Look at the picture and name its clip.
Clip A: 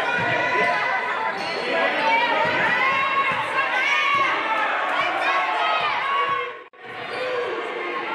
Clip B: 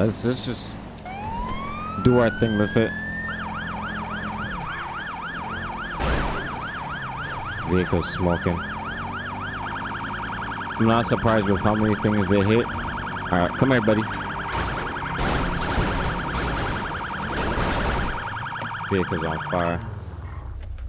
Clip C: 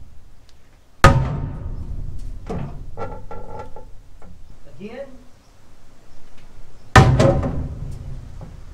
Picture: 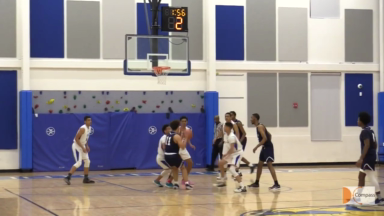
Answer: A